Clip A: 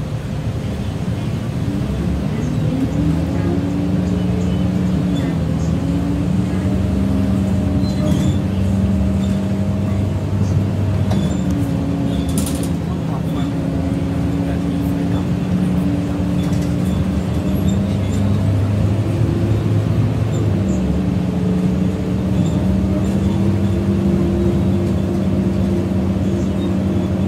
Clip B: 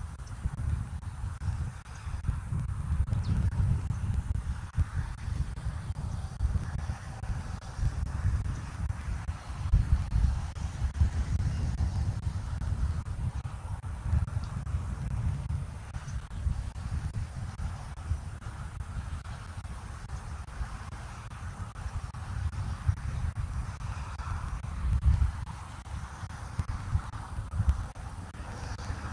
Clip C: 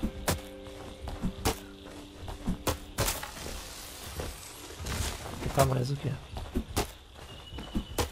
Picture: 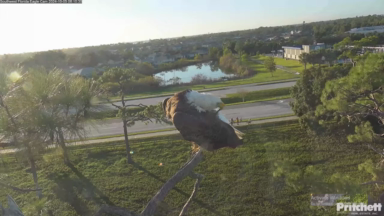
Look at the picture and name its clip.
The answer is B